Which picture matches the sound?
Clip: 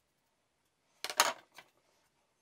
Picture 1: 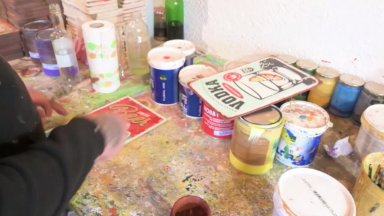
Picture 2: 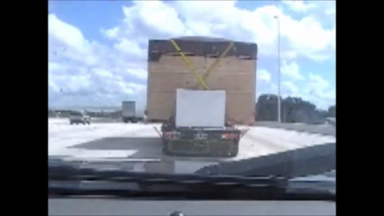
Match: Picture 1